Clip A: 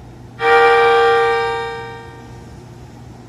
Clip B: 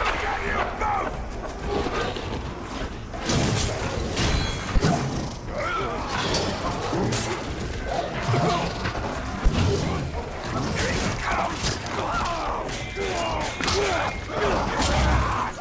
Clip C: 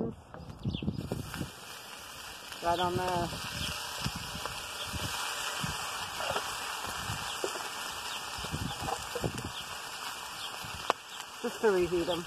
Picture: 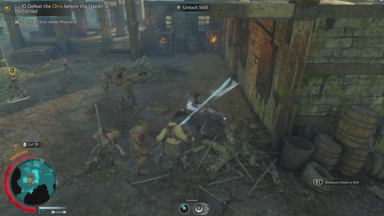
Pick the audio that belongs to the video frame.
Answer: B